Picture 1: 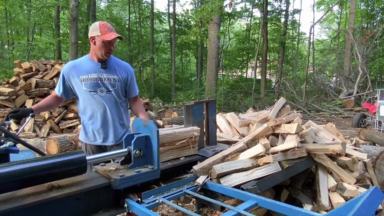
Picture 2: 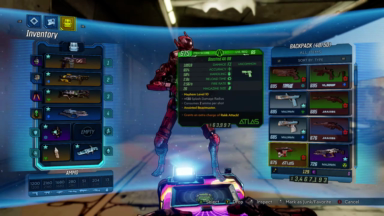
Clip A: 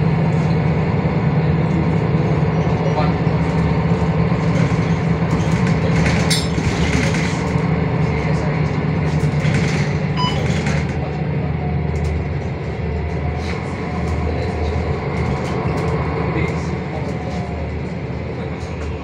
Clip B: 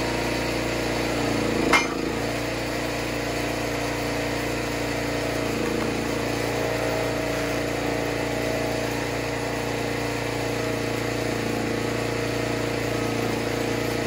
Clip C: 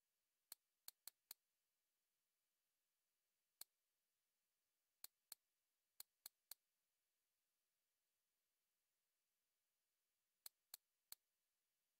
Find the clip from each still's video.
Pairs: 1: B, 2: C